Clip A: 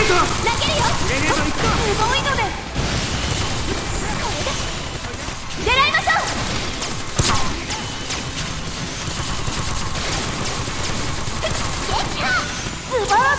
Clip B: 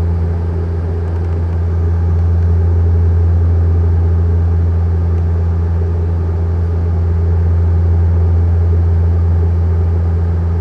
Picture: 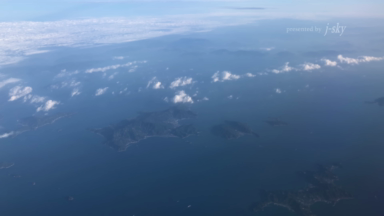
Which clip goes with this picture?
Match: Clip B